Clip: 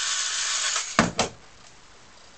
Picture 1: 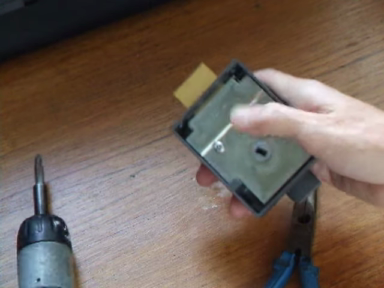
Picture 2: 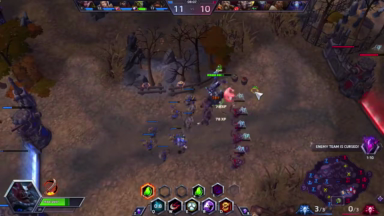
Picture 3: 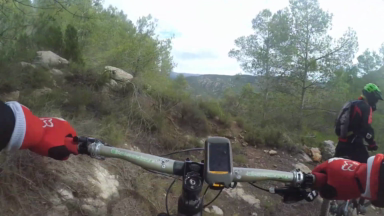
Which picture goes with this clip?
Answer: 1